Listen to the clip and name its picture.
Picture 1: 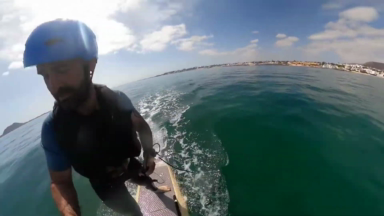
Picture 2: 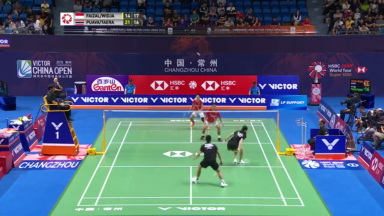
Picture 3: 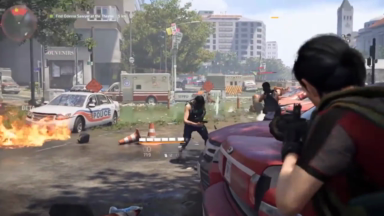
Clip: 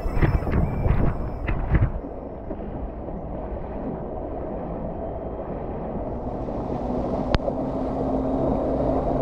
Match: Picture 1